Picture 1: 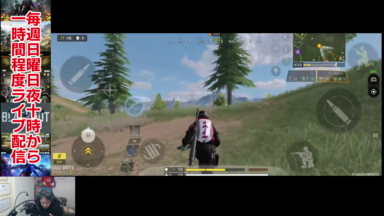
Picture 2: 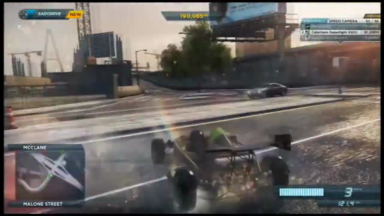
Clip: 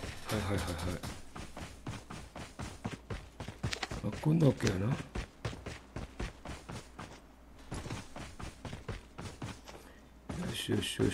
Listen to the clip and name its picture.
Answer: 1